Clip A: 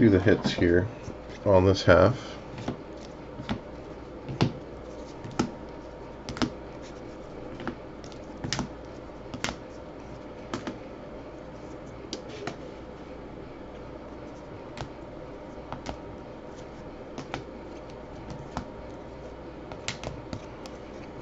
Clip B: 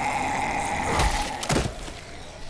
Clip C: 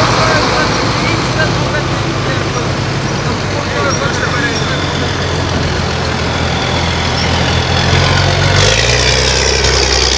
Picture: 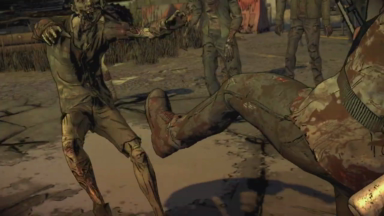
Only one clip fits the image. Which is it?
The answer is B